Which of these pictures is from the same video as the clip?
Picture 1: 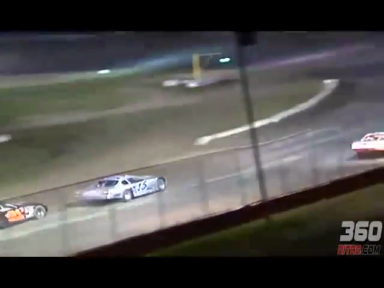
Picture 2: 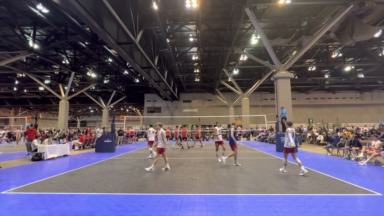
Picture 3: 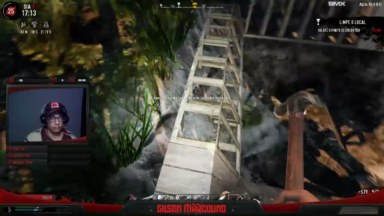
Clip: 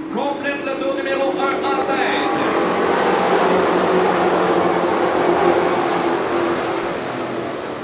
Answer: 1